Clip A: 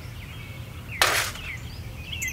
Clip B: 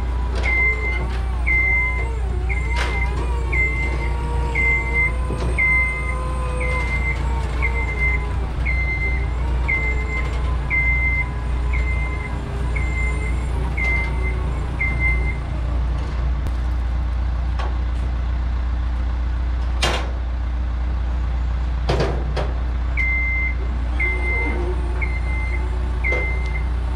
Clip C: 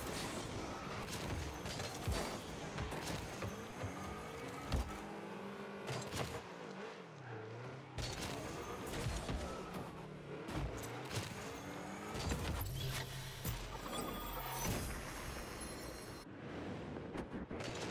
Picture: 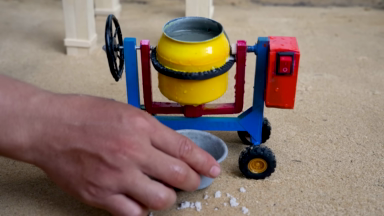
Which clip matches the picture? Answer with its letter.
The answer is A